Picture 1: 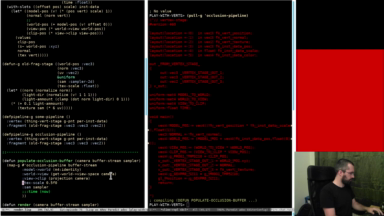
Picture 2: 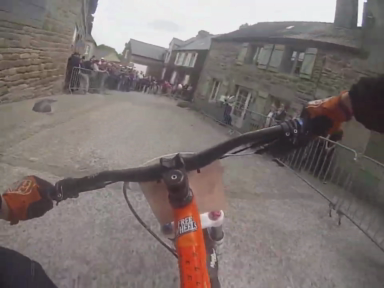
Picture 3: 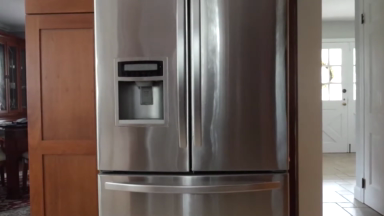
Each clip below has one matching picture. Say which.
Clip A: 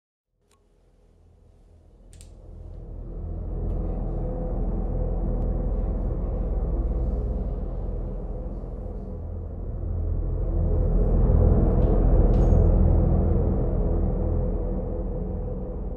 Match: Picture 3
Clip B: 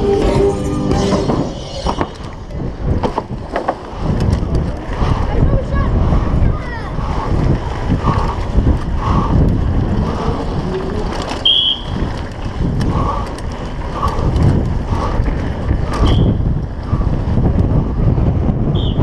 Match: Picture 2